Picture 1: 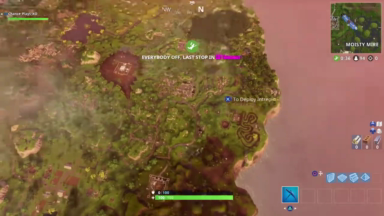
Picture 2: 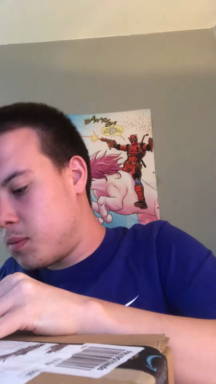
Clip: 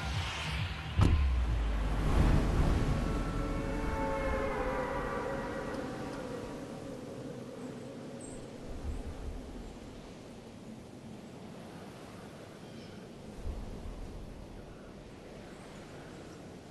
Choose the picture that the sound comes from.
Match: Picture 1